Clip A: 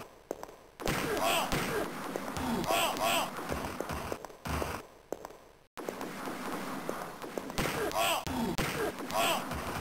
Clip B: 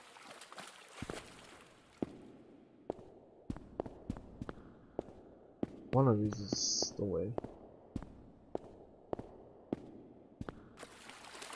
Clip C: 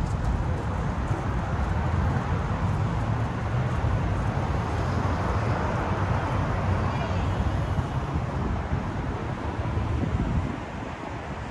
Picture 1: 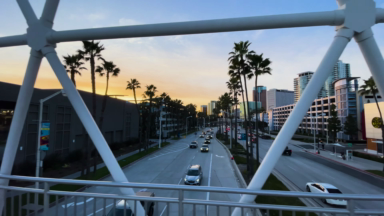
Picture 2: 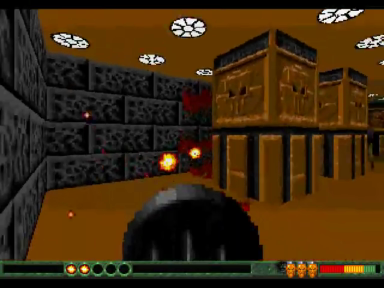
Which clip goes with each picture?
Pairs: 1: C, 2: A